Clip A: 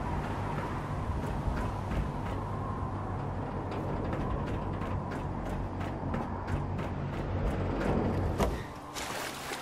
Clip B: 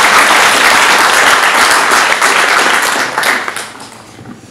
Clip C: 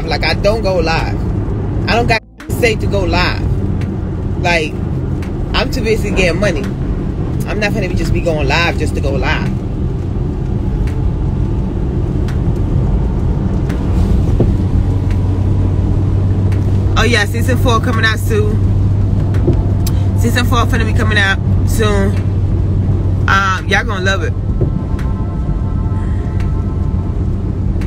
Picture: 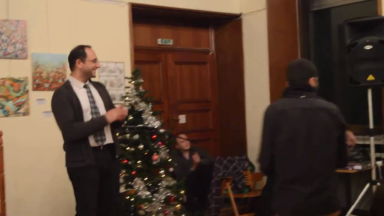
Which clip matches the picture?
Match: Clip B